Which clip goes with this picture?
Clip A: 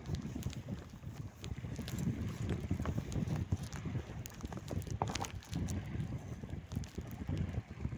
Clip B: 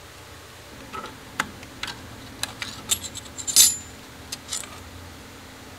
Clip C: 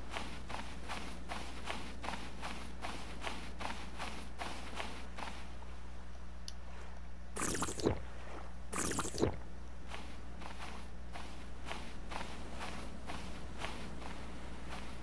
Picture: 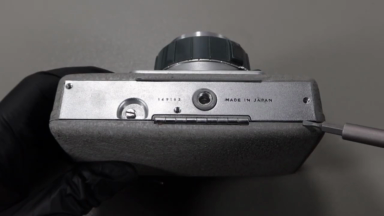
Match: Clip B